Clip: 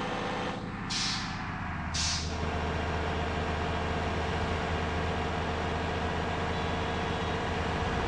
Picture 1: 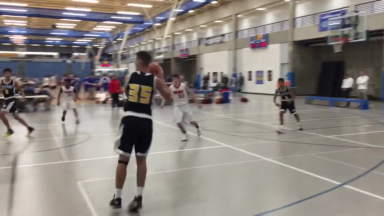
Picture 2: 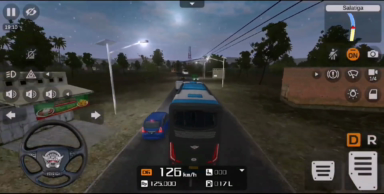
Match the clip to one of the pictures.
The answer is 2